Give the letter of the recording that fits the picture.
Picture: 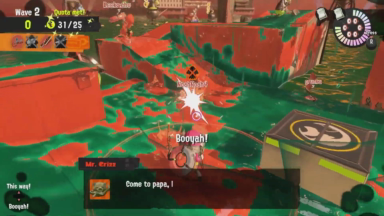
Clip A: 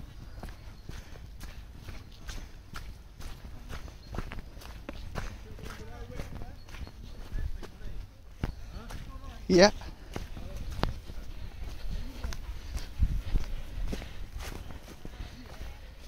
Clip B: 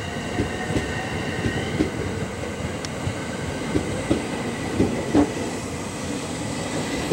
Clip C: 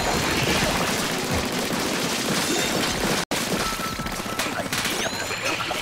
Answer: C